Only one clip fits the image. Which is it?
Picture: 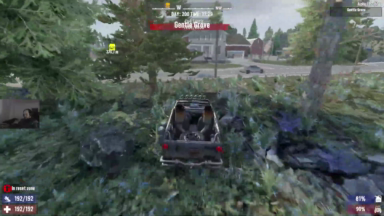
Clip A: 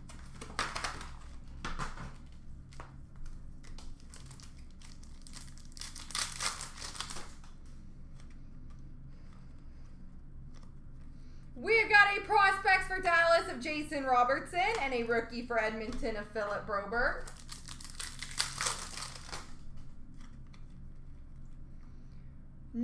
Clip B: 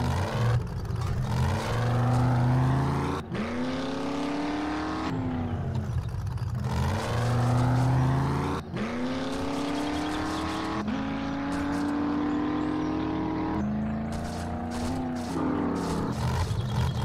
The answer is B